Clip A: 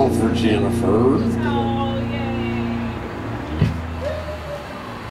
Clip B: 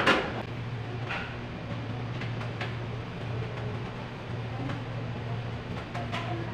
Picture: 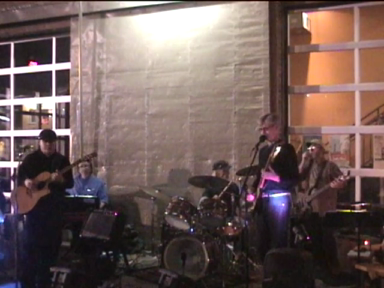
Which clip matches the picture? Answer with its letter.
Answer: A